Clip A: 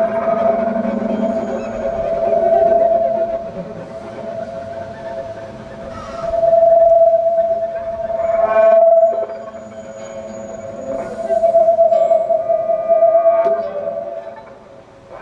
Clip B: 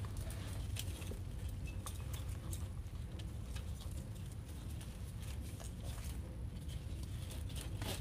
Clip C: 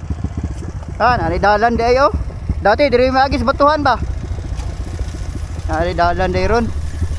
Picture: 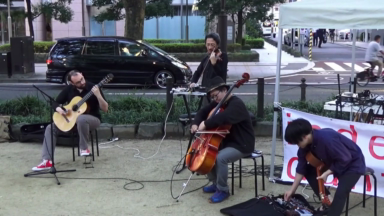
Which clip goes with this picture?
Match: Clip A